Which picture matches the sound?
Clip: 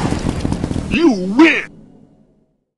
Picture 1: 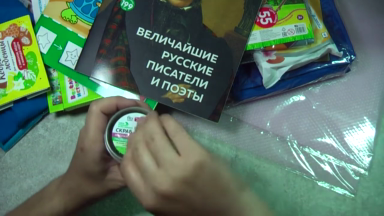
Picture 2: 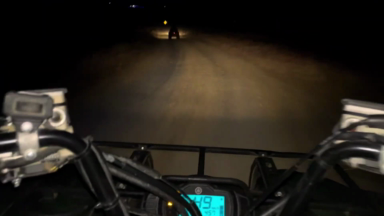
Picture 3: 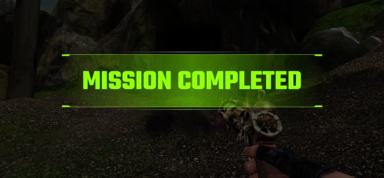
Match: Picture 3